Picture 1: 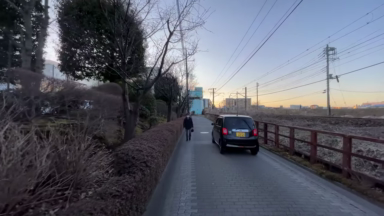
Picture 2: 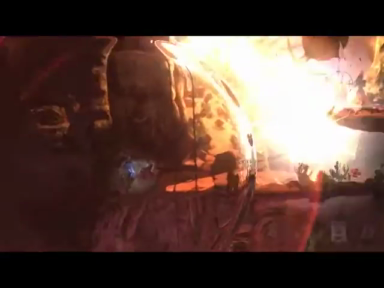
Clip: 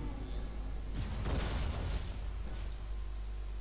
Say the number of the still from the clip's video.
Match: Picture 2